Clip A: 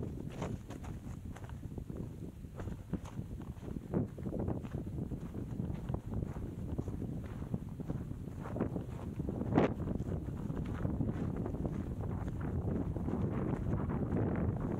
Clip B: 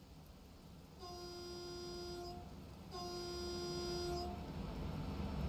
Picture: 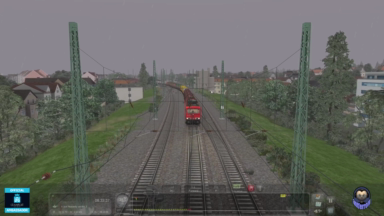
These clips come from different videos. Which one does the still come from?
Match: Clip B